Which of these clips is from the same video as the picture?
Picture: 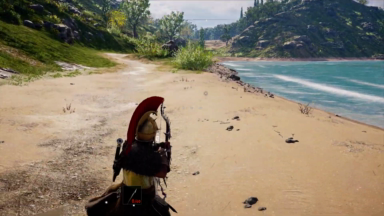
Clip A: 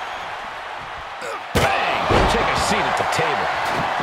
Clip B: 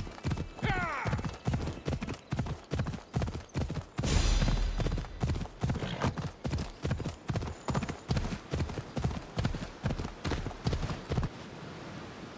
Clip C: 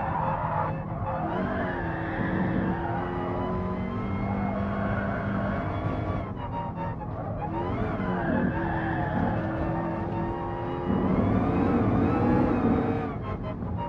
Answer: B